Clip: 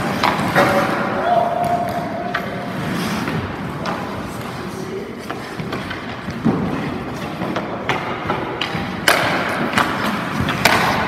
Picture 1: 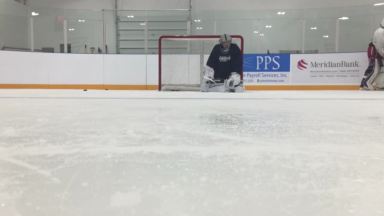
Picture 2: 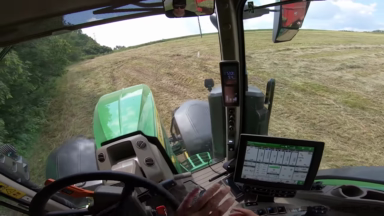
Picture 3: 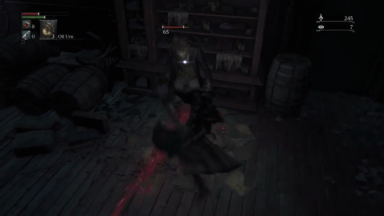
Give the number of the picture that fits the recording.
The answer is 1